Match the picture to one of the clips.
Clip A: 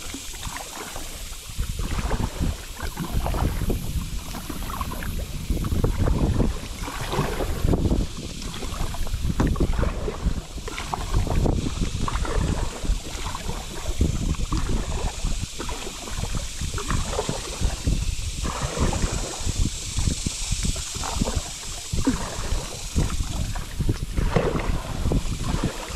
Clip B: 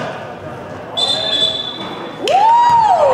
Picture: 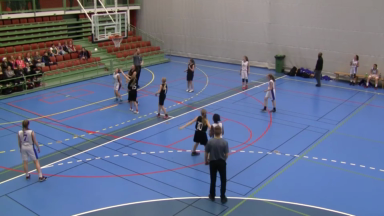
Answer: B